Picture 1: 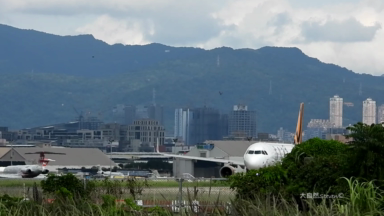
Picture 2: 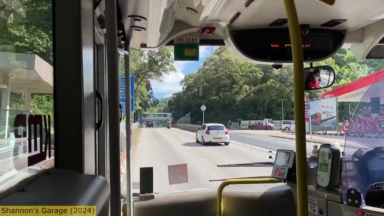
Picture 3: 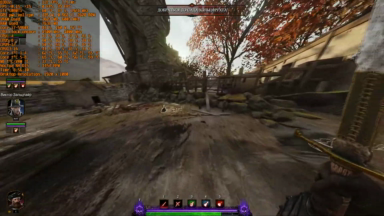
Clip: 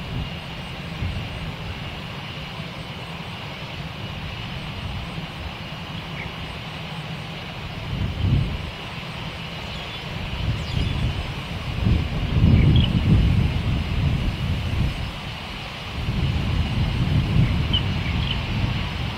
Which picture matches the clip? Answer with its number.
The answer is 1